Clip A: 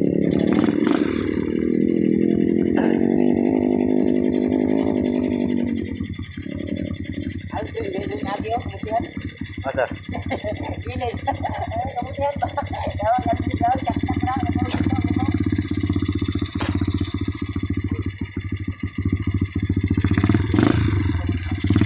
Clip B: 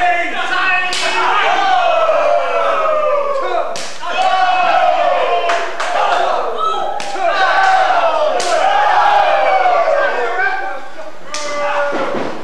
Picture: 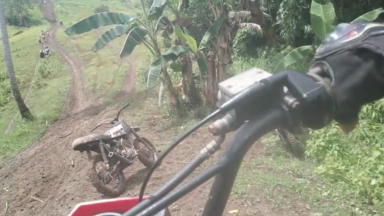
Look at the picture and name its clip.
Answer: A